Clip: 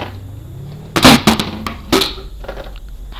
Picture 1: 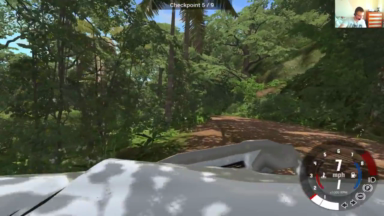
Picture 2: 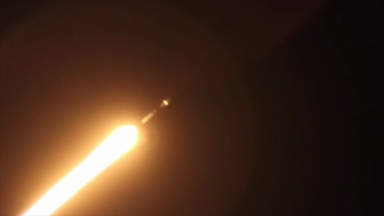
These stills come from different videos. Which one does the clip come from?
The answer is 1